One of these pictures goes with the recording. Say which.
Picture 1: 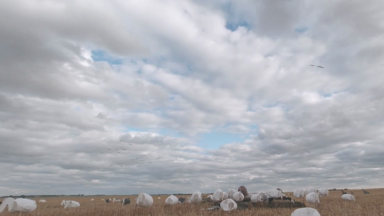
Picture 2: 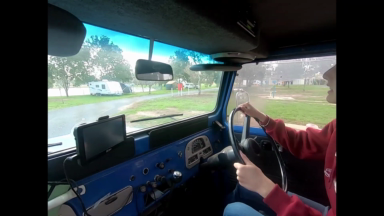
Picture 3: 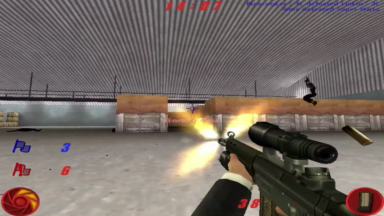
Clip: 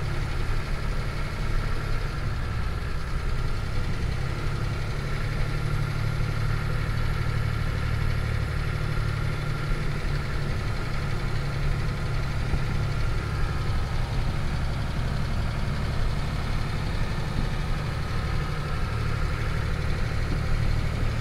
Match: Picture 2